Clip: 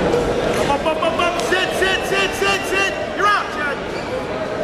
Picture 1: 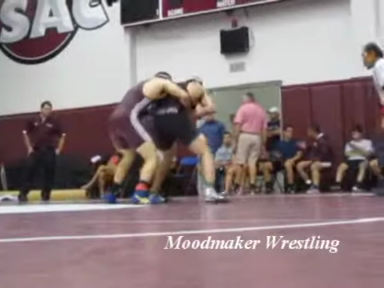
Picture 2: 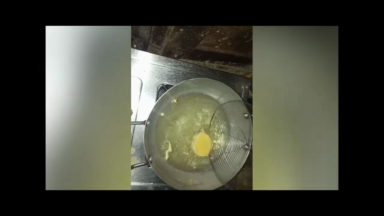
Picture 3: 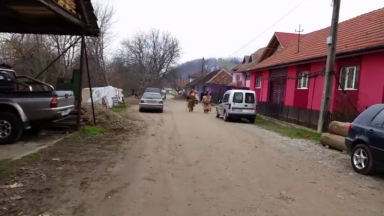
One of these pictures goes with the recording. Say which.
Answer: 1